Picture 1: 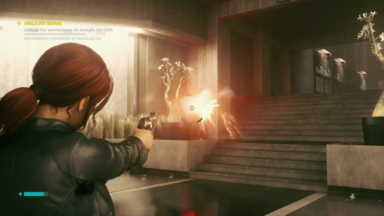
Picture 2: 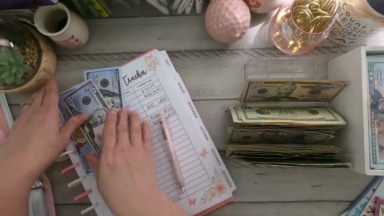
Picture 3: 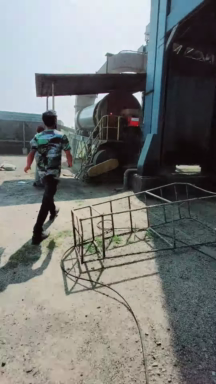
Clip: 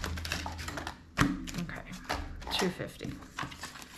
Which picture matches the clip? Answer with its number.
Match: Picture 2